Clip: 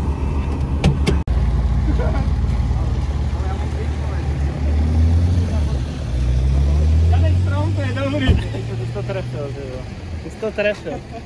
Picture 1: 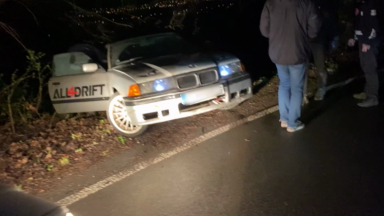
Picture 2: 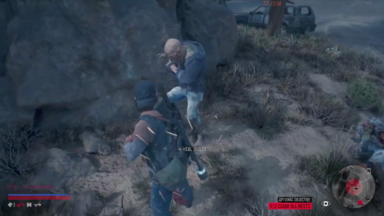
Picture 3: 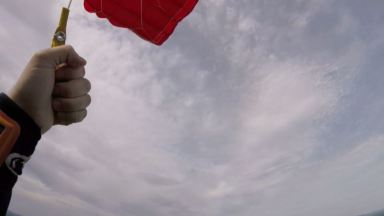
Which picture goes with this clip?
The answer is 1